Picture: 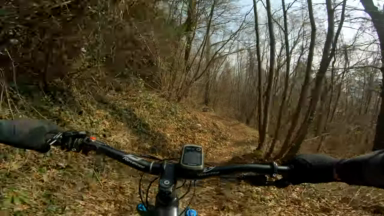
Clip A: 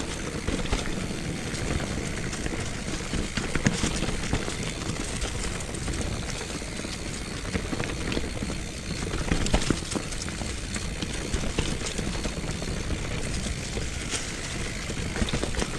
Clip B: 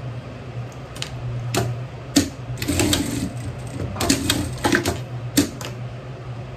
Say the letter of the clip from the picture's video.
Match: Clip A